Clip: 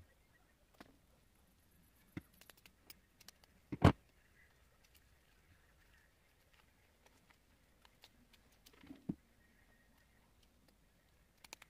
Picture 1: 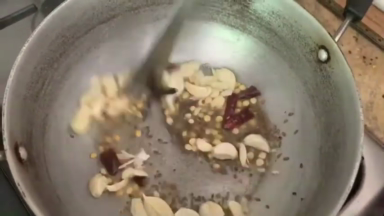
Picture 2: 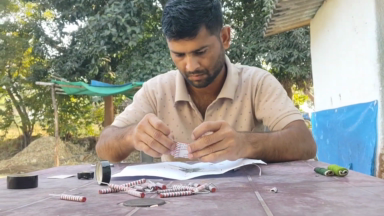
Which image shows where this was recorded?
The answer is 2